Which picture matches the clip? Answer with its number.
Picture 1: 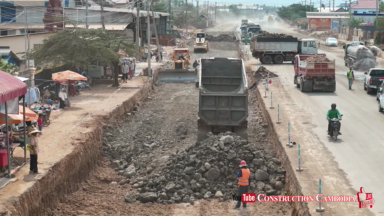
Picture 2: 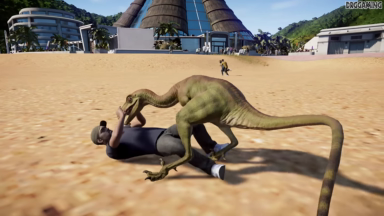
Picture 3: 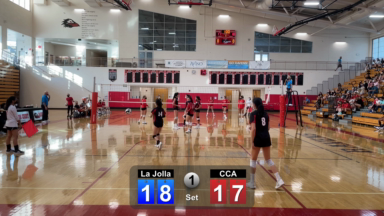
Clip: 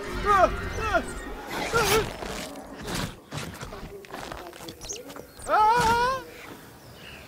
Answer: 2